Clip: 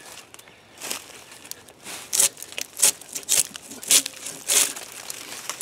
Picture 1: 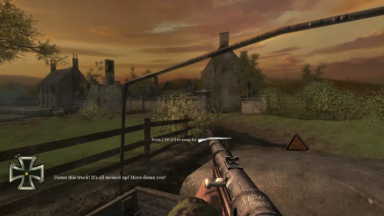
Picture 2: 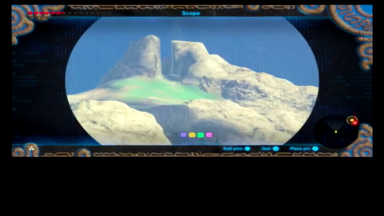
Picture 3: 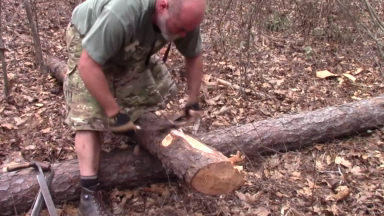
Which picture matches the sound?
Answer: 3